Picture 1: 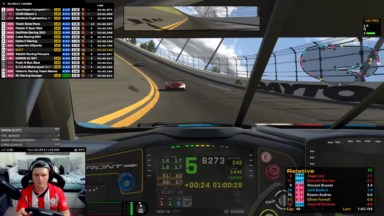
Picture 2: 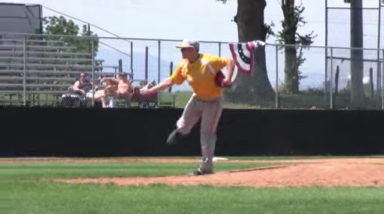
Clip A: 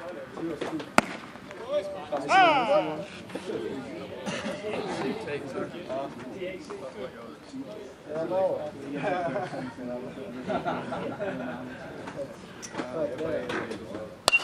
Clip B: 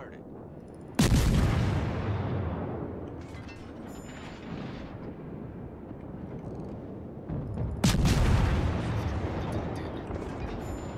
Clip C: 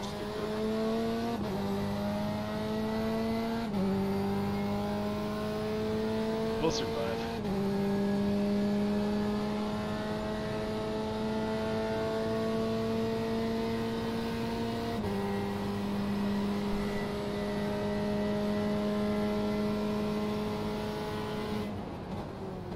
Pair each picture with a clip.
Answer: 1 C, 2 A